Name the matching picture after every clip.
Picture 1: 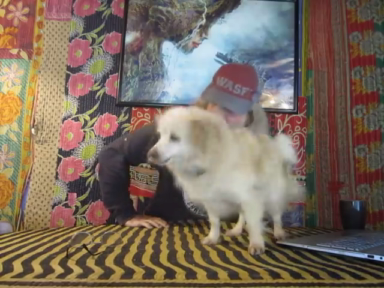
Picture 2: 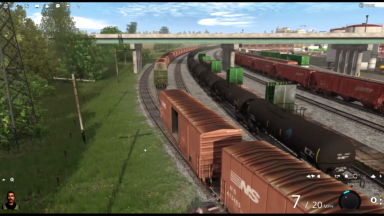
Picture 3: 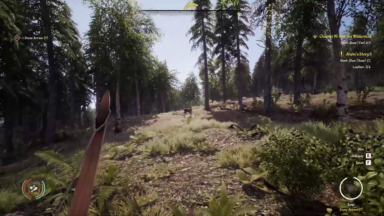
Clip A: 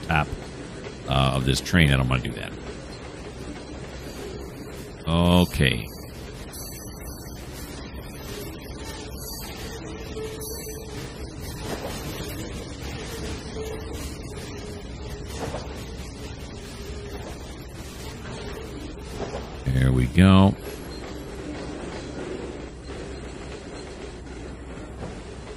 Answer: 2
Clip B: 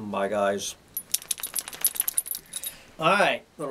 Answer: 1